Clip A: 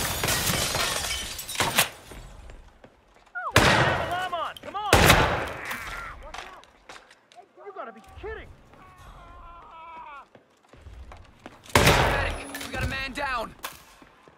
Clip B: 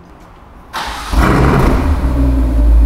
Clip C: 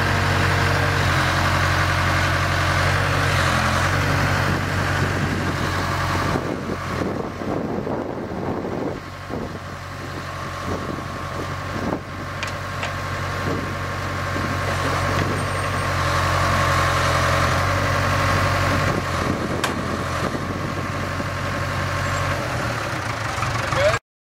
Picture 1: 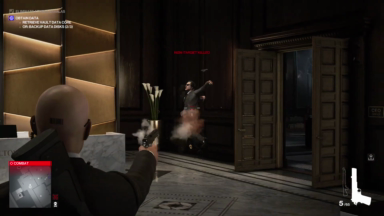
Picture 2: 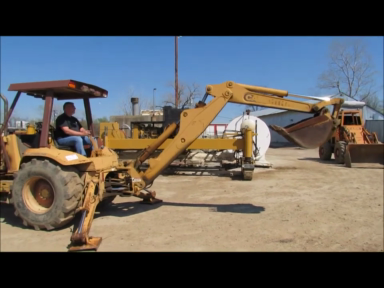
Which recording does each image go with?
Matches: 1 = A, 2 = C